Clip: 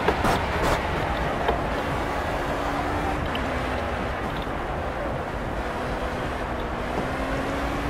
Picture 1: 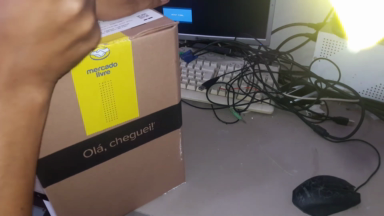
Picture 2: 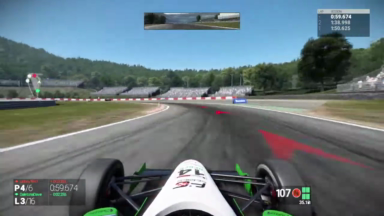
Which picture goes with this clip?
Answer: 2